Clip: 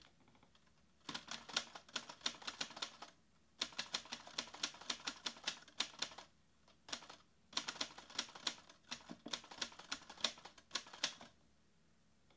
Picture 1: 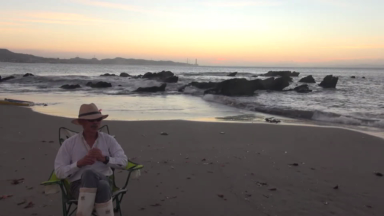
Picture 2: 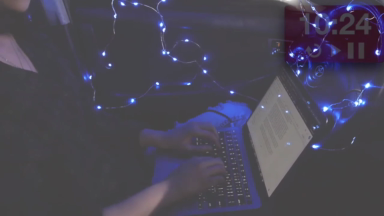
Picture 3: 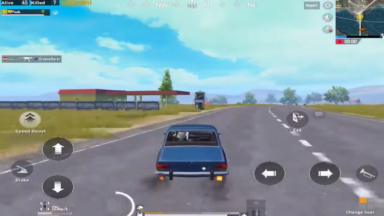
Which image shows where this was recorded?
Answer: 2